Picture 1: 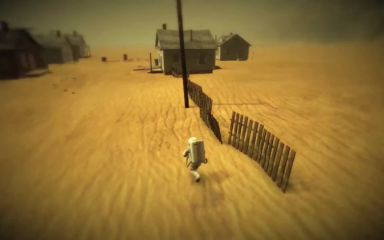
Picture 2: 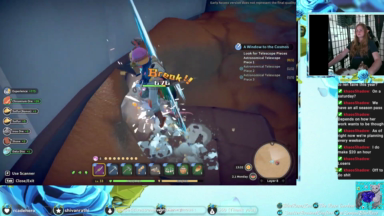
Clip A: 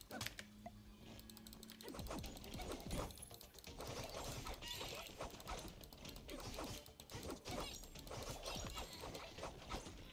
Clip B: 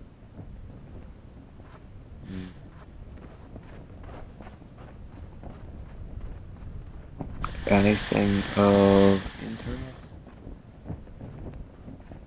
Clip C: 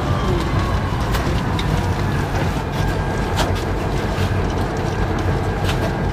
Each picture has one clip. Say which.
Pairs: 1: B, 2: A